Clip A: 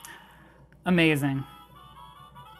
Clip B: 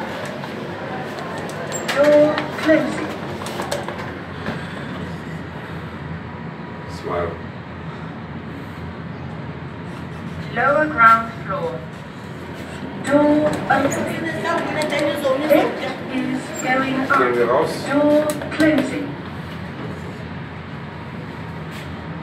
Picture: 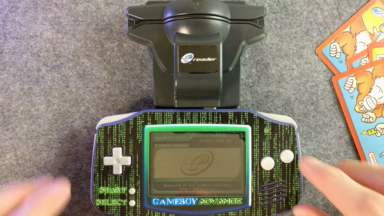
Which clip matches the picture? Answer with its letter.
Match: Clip A